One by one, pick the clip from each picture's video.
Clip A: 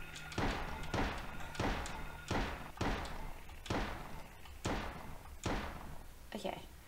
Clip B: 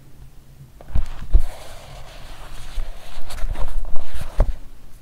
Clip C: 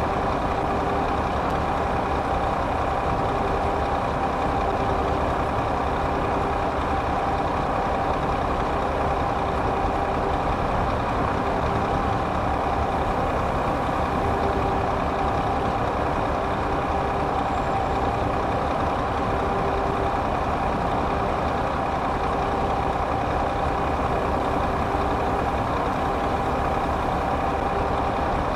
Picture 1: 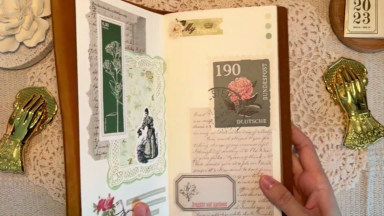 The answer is B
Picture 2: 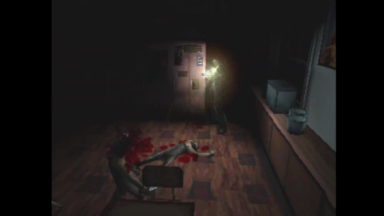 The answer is A